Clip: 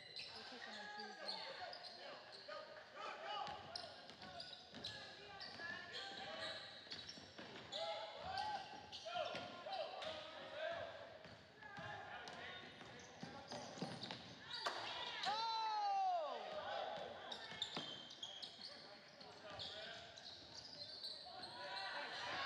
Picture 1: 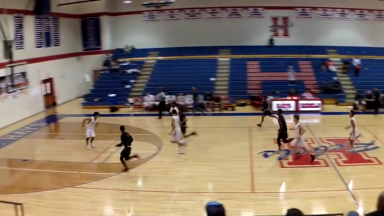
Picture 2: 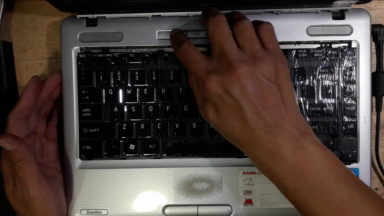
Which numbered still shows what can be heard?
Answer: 1